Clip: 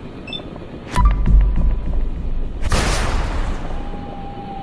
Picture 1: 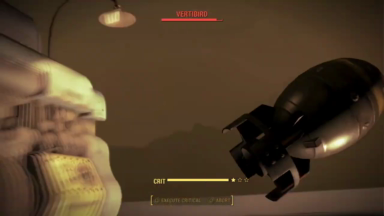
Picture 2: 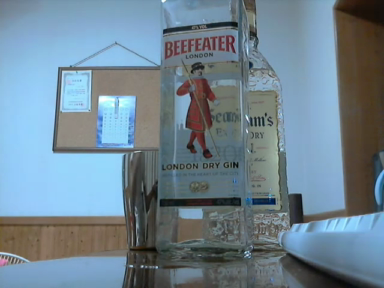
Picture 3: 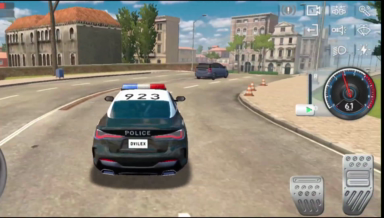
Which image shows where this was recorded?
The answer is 1